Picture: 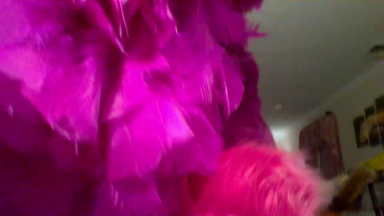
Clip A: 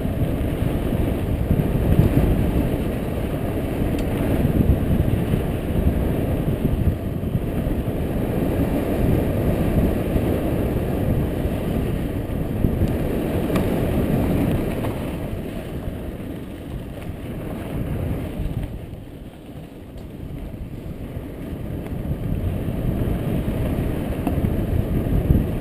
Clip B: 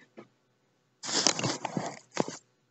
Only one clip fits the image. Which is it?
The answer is B